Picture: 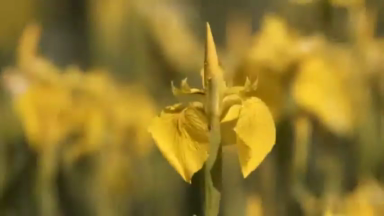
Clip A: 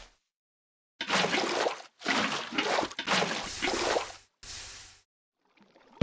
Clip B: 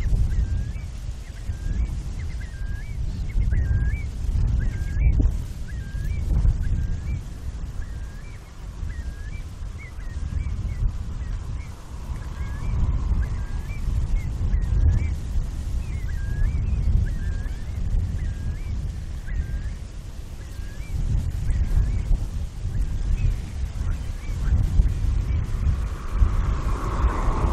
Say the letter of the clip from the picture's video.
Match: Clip B